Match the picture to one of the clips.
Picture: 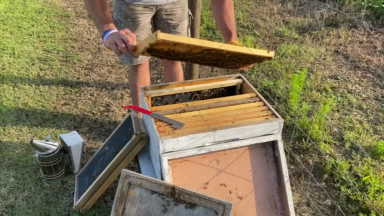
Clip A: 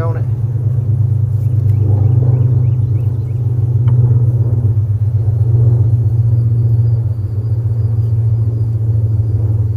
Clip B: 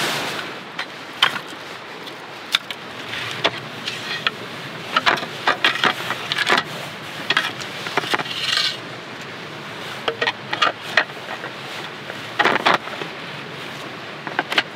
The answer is A